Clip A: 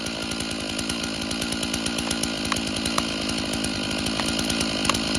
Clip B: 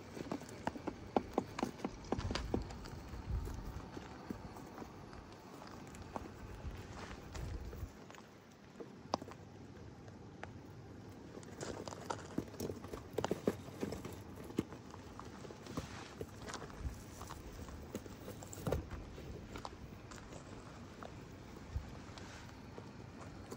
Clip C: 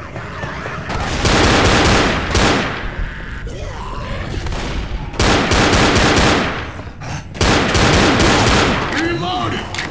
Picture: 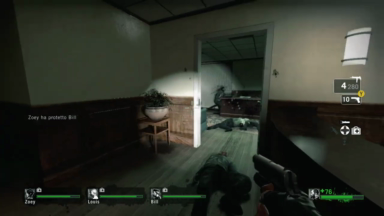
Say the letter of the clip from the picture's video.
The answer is C